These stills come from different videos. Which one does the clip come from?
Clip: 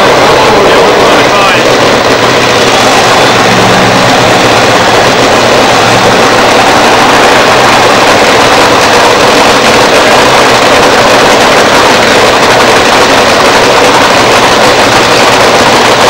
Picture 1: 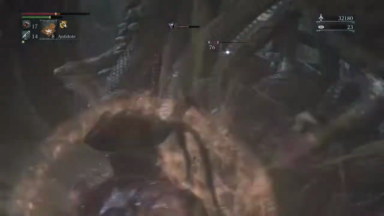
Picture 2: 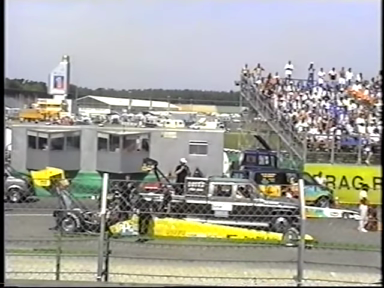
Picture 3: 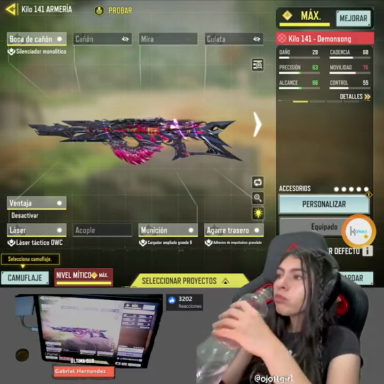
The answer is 2